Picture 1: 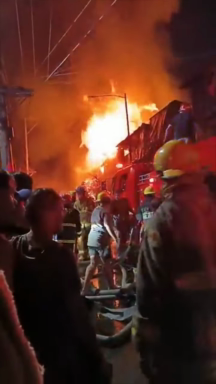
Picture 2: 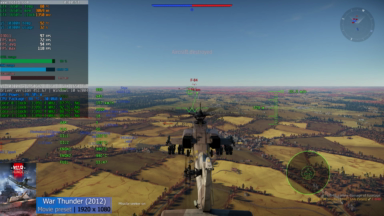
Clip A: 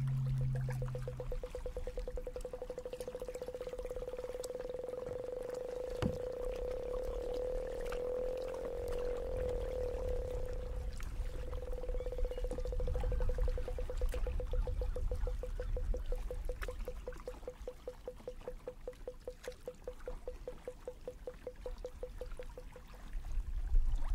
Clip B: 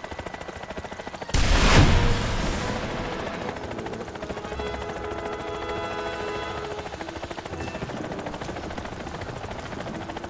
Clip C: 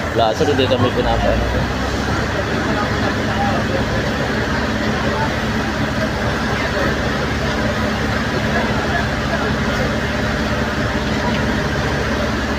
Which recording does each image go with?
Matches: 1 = C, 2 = B